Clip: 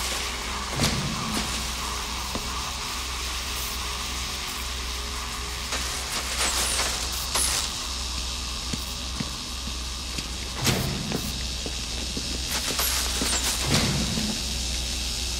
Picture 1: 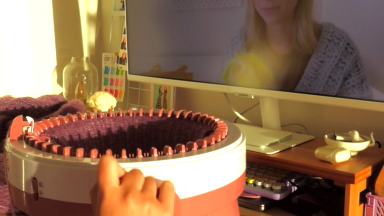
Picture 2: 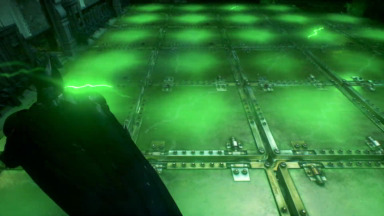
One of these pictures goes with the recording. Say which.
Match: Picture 2